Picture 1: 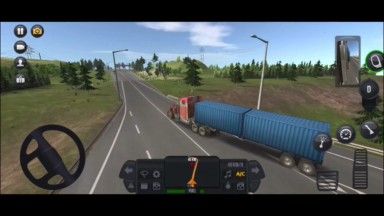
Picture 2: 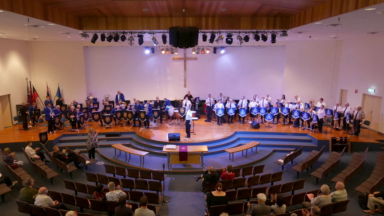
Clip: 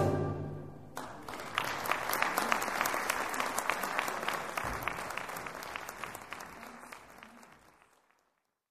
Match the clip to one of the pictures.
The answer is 2